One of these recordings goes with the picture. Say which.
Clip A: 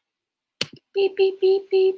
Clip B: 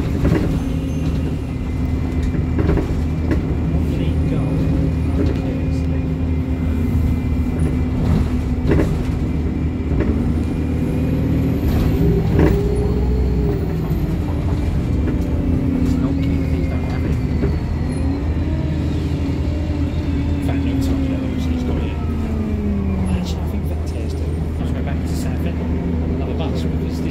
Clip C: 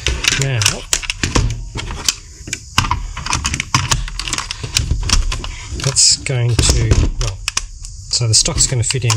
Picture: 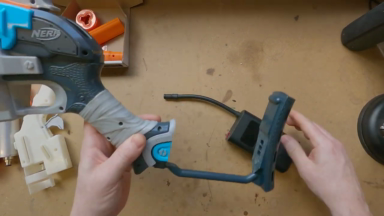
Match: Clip C